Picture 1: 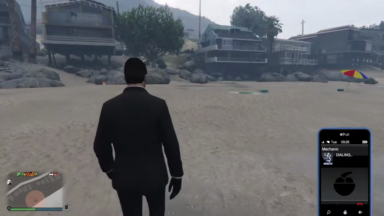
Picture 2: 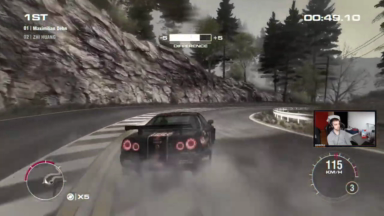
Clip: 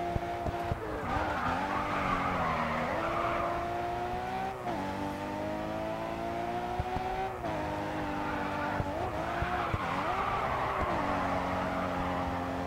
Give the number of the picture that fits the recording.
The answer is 2